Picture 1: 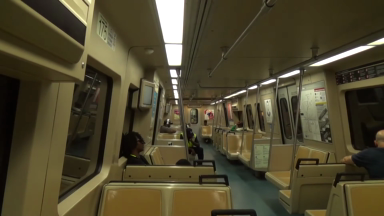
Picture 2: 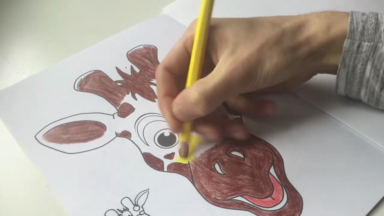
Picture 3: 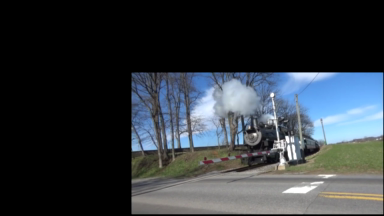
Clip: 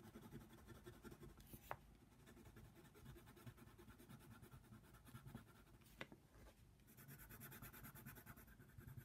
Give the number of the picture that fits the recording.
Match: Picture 2